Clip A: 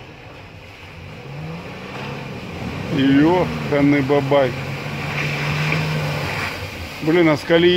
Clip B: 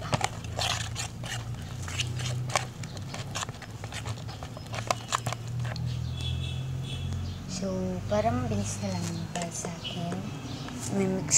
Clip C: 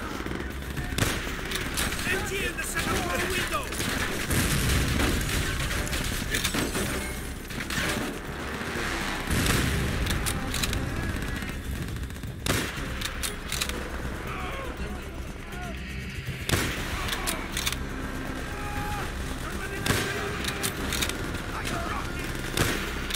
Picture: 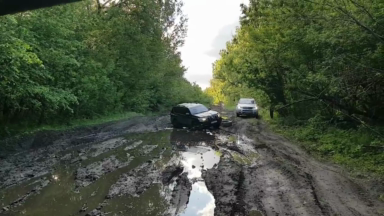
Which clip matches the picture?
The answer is A